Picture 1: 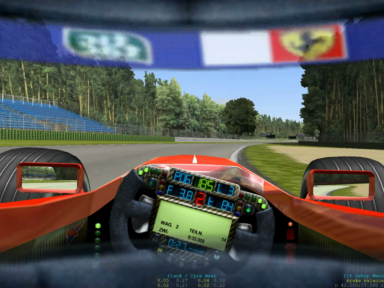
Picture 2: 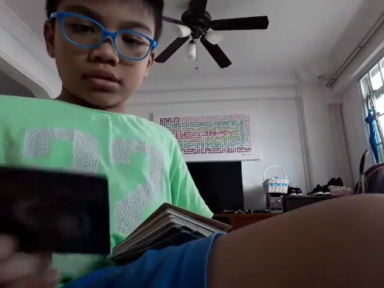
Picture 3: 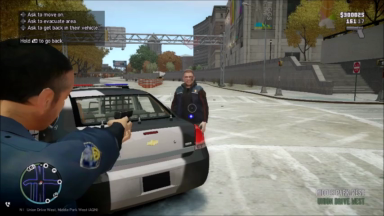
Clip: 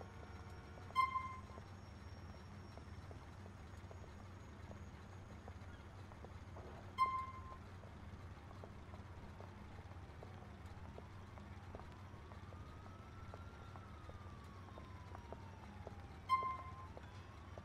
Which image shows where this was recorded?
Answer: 3